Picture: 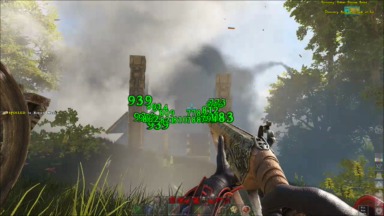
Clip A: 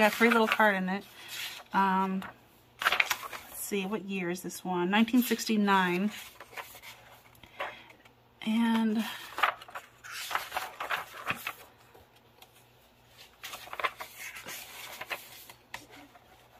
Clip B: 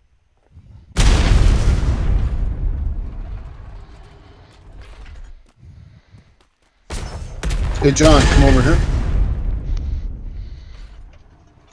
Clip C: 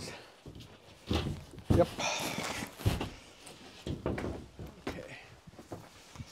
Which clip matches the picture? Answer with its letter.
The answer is B